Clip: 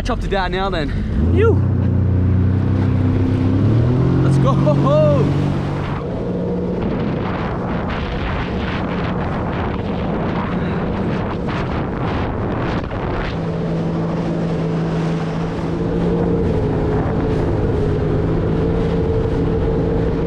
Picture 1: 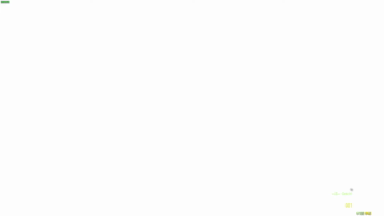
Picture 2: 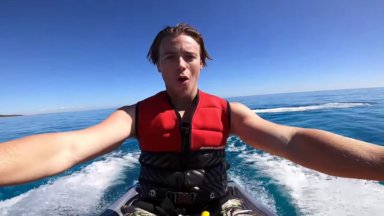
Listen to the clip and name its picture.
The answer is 2